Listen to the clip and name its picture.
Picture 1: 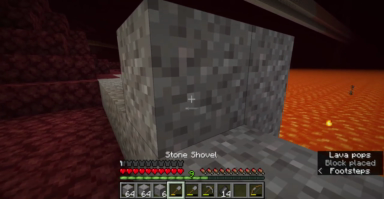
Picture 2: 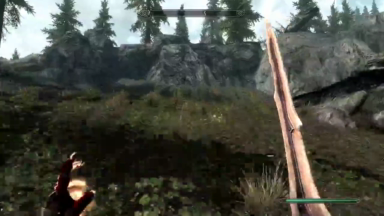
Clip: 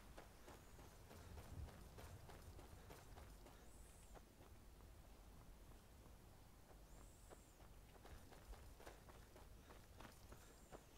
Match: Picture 2